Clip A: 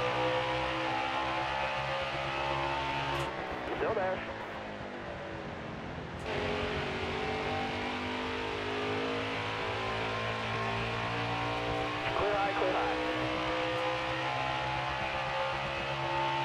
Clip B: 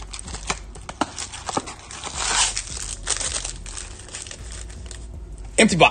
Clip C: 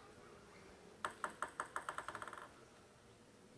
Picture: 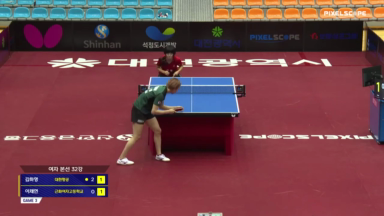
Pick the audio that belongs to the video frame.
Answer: C